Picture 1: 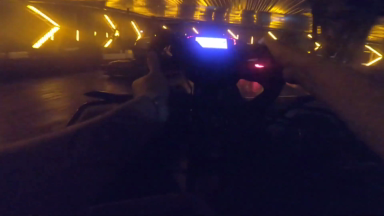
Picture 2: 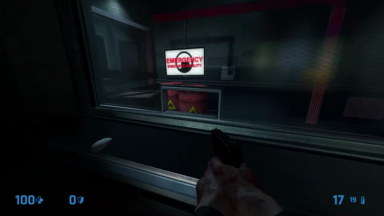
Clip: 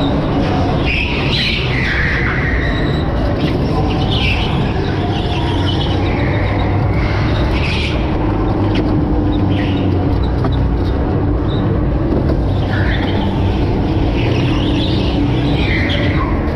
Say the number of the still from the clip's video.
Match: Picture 1